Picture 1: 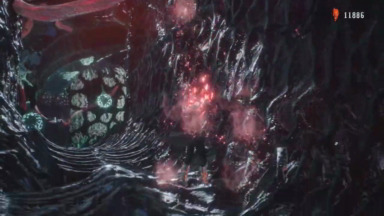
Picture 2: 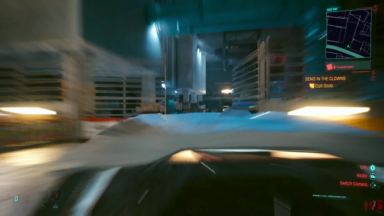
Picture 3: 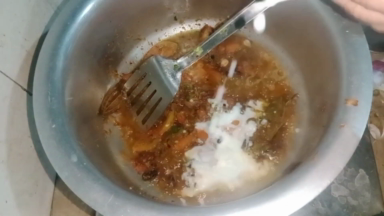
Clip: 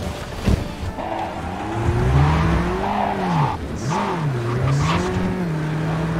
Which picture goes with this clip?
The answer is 2